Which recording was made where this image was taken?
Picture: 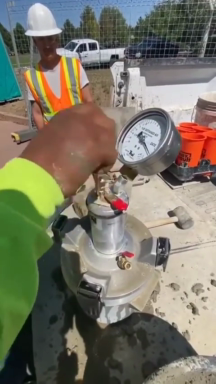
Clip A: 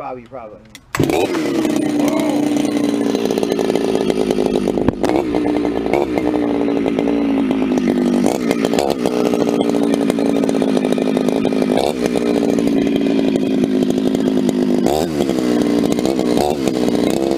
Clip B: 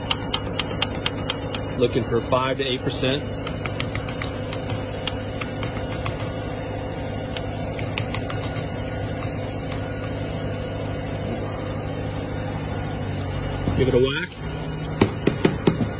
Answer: B